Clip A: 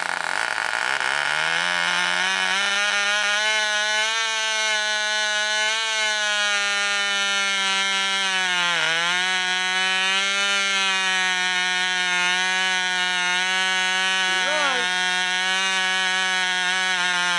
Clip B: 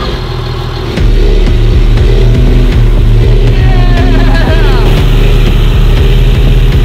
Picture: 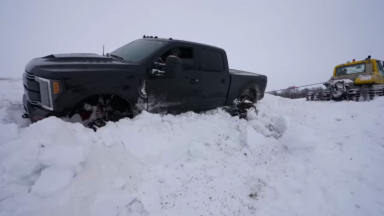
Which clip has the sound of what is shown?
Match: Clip B